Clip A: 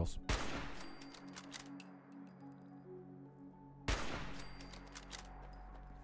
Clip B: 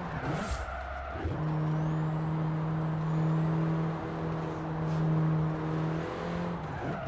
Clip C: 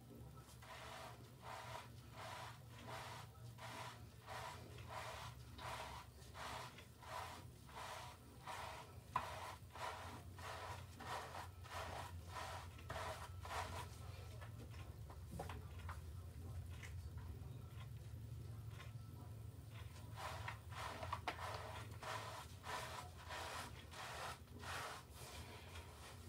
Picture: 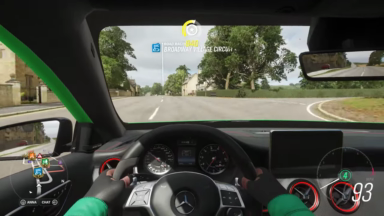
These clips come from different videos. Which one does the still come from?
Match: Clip B